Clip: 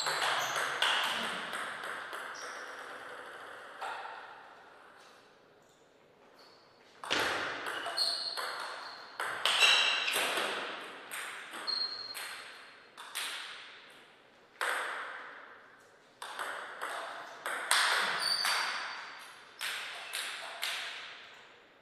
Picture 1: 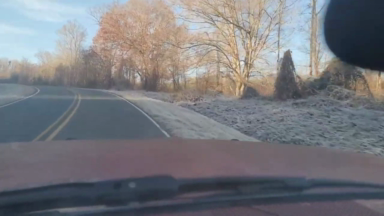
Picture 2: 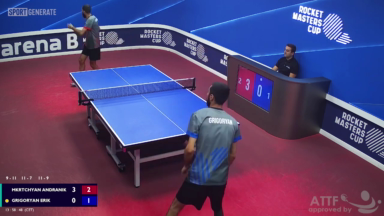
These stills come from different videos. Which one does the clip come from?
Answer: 2